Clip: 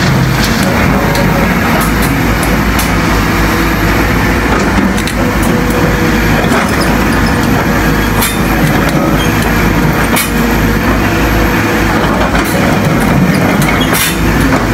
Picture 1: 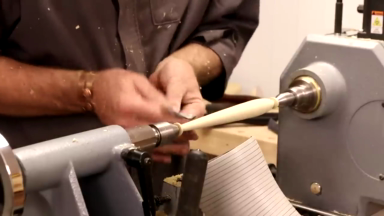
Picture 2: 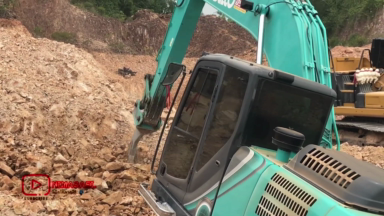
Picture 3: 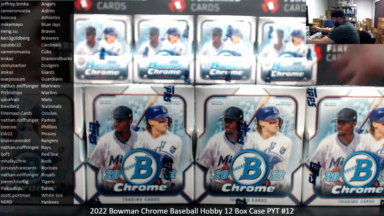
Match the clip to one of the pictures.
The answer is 2